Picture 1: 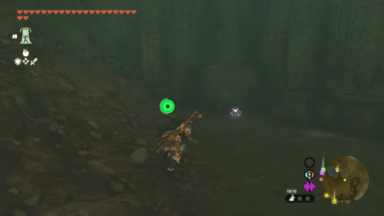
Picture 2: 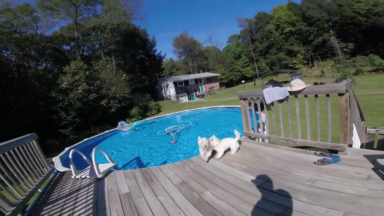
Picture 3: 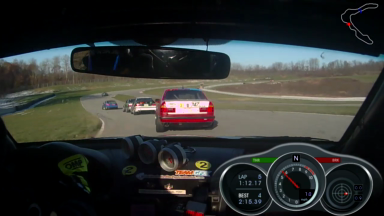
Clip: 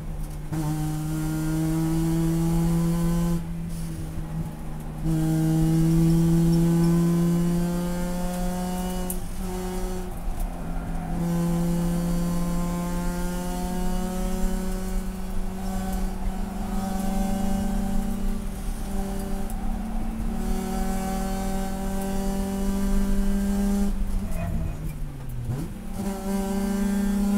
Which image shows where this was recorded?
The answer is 3